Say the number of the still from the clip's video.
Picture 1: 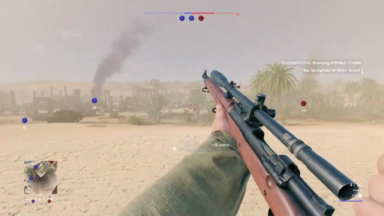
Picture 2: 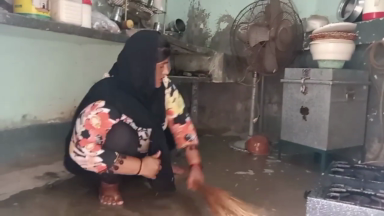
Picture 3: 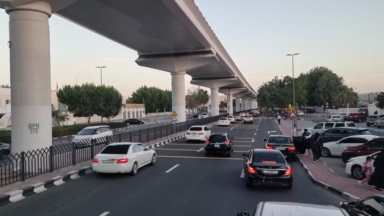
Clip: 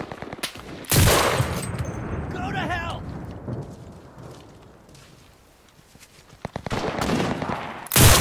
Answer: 1